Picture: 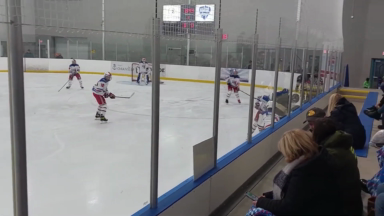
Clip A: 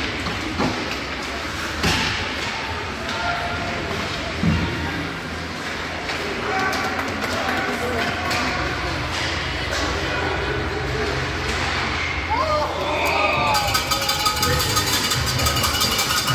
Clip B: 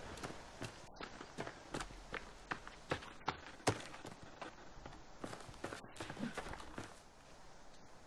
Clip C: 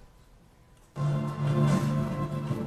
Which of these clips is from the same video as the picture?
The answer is A